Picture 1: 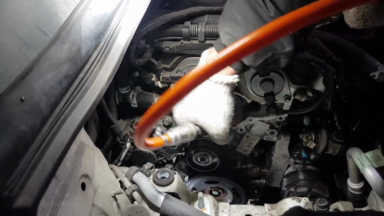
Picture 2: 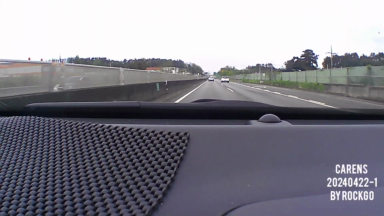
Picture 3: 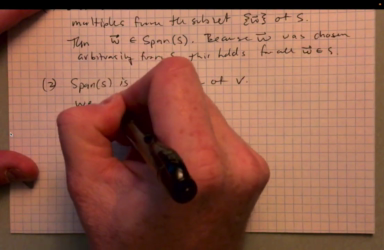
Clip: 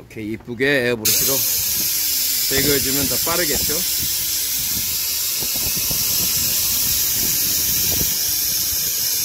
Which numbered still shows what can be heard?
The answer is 1